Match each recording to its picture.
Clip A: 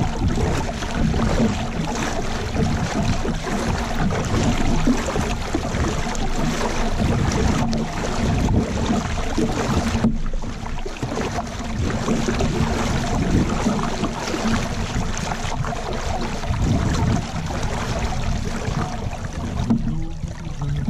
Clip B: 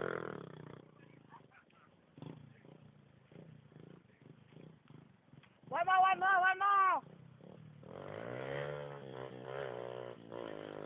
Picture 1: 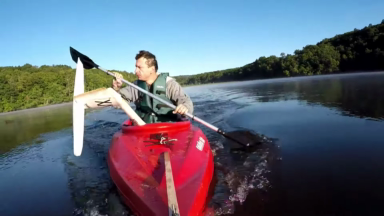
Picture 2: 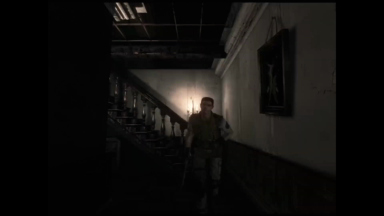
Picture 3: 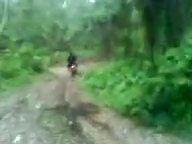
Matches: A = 1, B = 3